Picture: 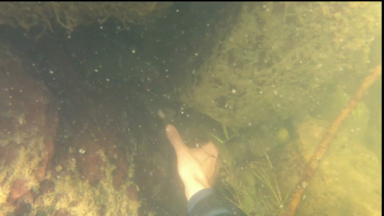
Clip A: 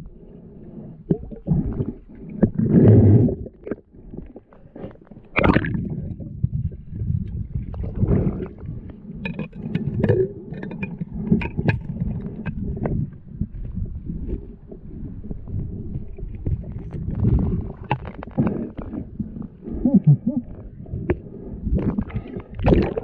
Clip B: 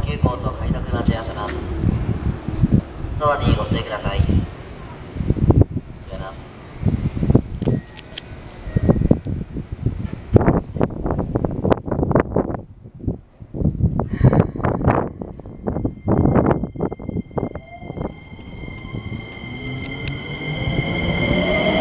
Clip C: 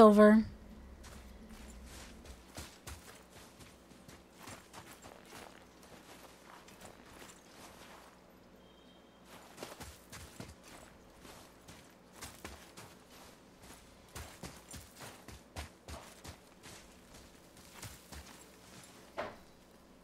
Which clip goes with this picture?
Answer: A